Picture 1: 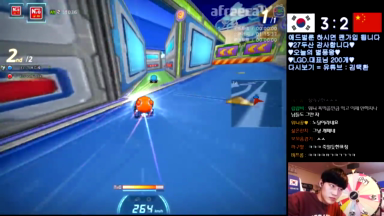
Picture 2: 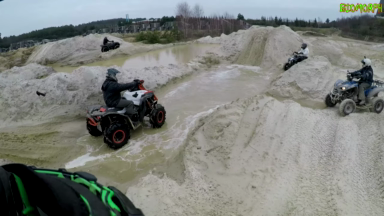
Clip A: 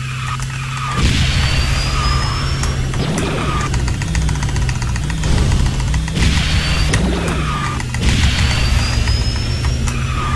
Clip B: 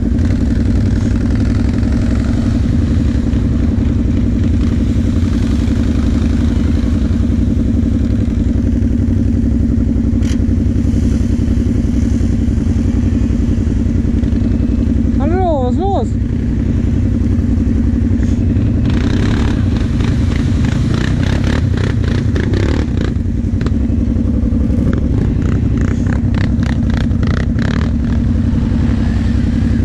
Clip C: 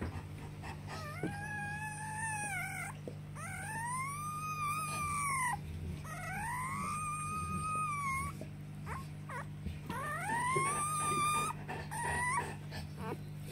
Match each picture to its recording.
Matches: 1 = A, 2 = B